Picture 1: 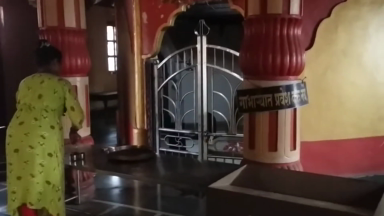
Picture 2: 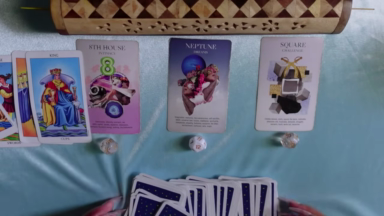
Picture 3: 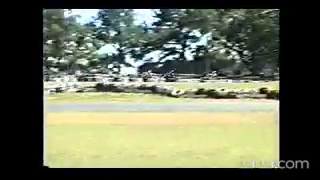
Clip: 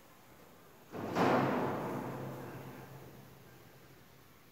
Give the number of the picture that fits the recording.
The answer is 1